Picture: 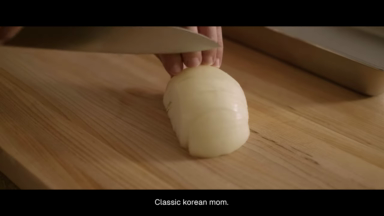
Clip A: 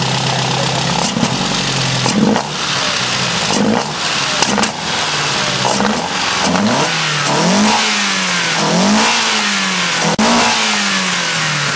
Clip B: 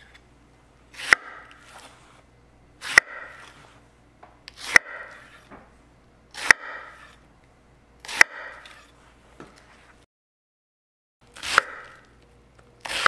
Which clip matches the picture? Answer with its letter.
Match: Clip B